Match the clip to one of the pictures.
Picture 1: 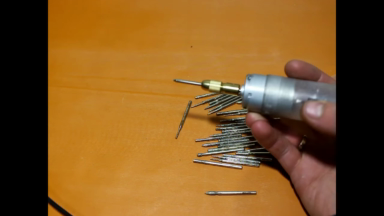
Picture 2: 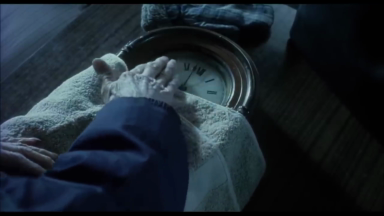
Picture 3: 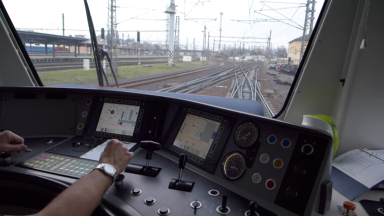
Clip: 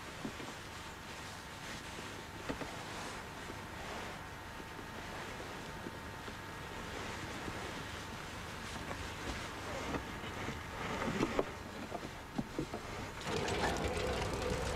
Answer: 2